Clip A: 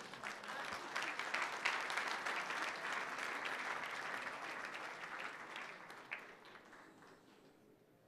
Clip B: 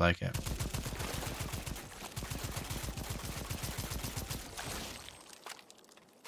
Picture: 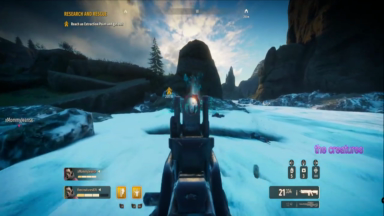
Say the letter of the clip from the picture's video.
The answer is B